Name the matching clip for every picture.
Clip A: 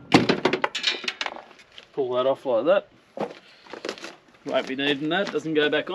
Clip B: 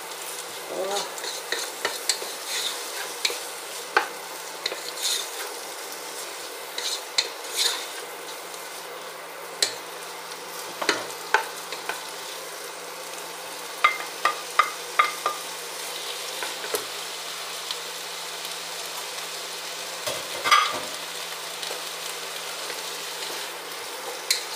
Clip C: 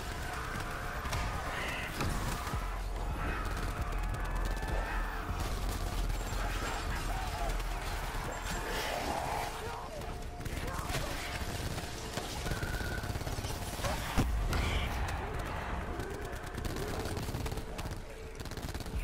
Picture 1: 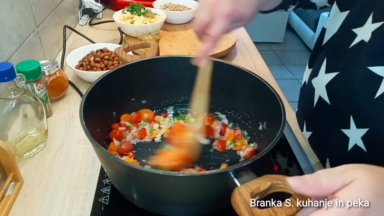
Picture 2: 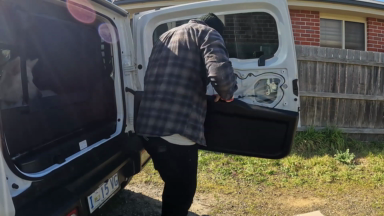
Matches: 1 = B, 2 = A